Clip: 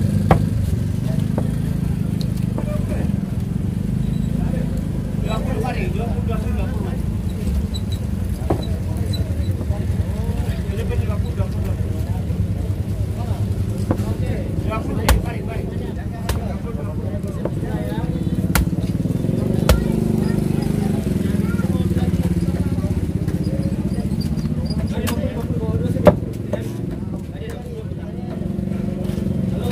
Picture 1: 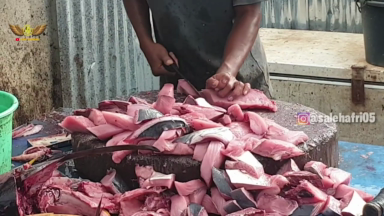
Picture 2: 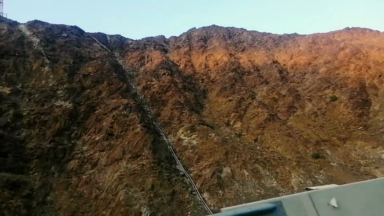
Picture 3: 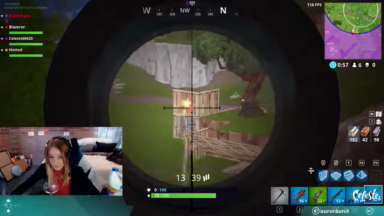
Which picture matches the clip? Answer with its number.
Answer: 1